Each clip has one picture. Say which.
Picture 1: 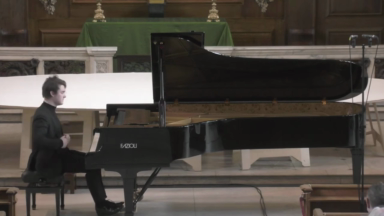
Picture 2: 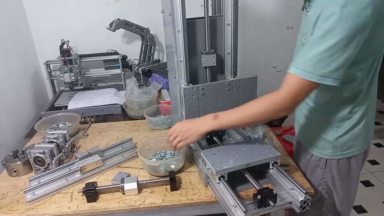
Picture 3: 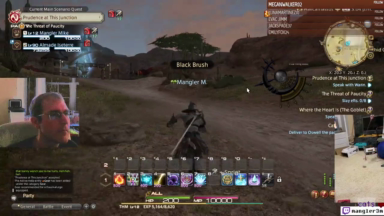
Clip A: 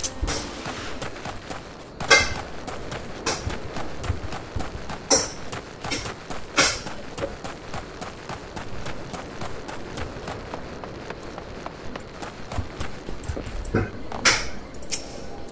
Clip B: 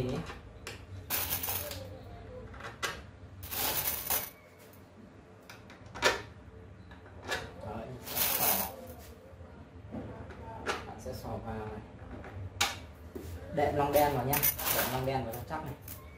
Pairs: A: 3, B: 2